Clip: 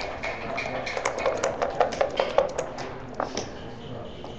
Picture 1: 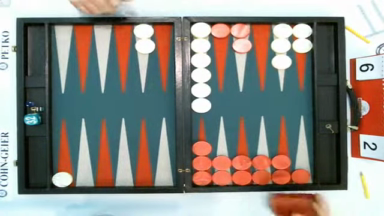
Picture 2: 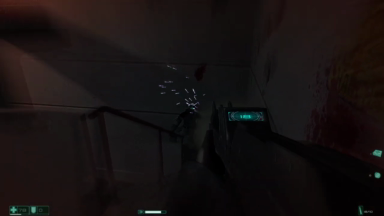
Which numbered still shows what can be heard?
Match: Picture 1